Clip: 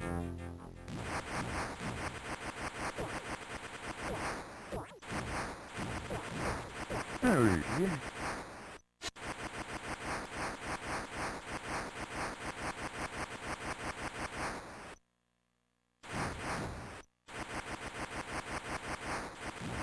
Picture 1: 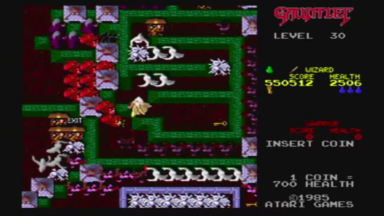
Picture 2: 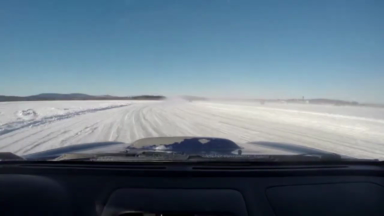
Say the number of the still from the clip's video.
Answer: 1